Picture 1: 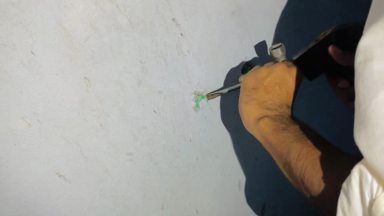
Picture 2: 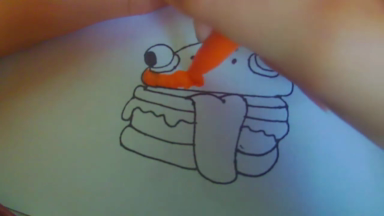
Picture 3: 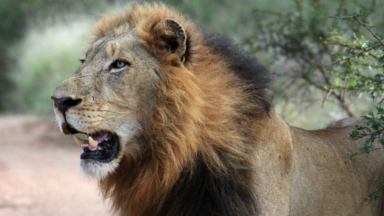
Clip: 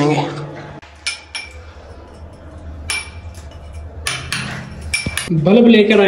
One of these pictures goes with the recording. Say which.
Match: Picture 1